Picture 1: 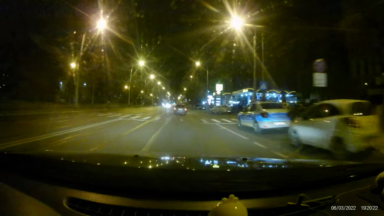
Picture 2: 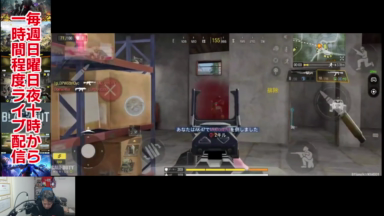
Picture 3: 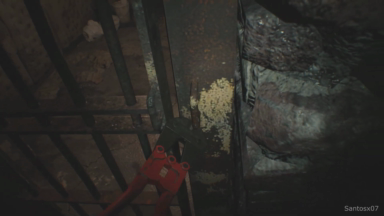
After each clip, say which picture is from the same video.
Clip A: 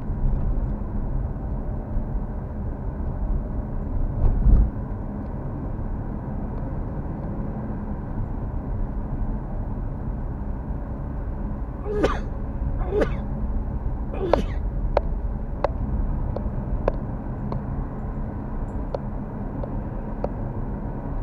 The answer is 1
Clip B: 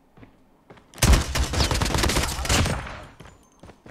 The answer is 2